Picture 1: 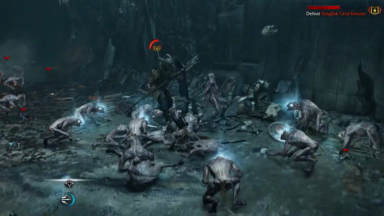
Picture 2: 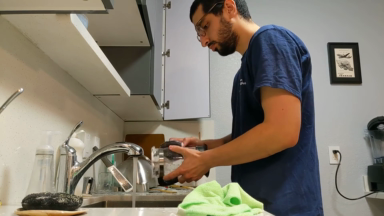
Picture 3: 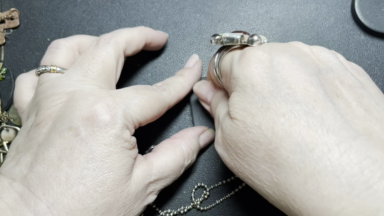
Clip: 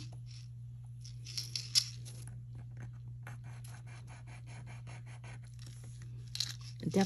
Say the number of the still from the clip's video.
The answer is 3